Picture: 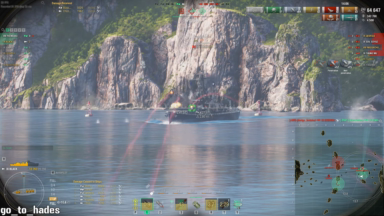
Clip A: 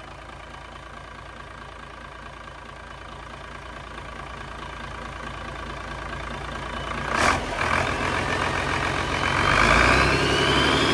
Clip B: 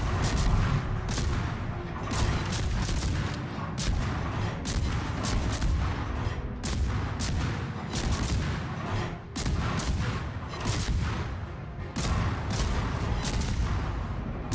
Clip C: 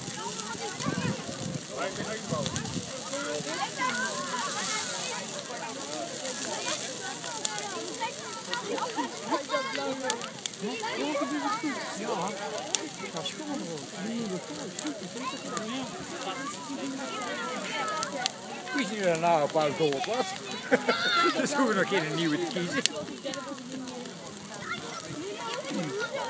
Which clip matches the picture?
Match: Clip B